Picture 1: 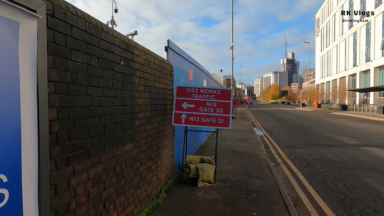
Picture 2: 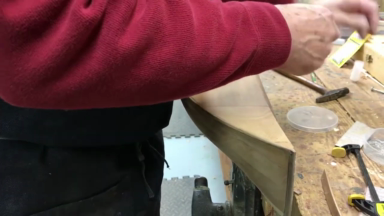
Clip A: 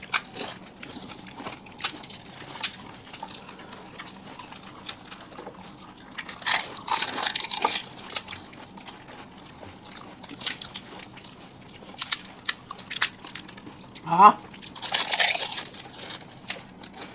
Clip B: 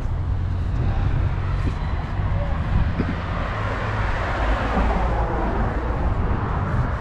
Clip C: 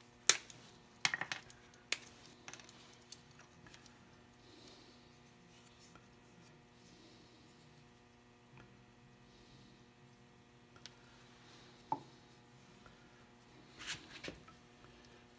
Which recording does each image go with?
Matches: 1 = B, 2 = C